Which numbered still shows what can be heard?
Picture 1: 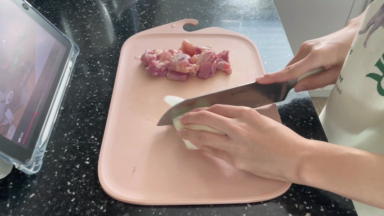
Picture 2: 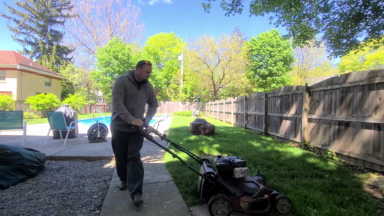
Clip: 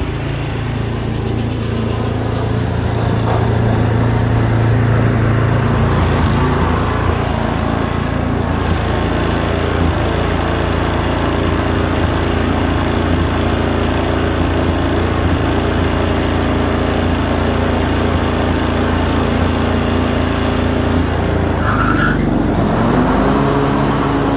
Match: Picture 2